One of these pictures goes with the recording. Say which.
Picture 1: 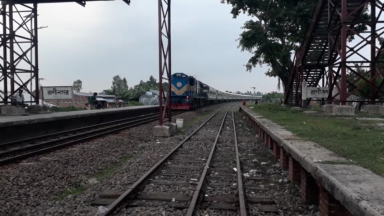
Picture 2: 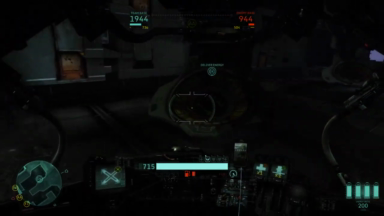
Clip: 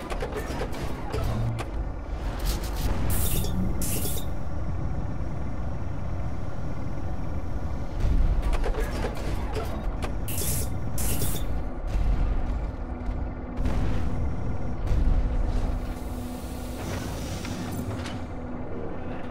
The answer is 2